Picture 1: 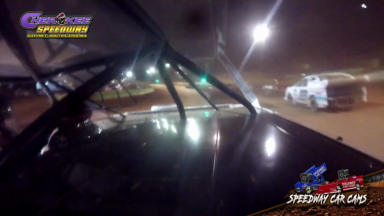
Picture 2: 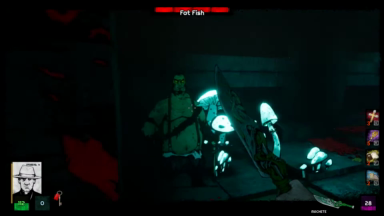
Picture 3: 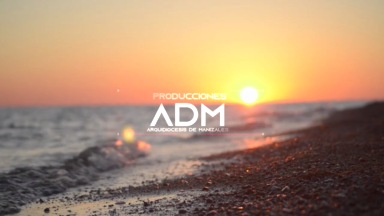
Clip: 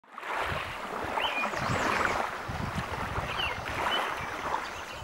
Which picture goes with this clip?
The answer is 3